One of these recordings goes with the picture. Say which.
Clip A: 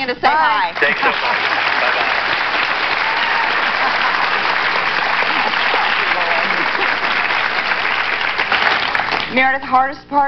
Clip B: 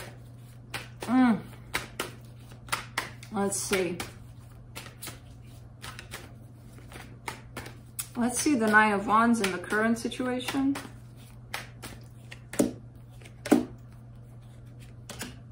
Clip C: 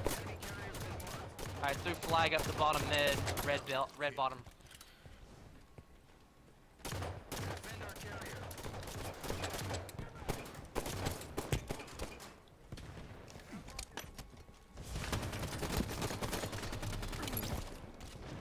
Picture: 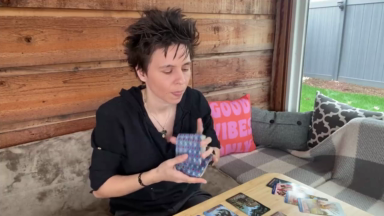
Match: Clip B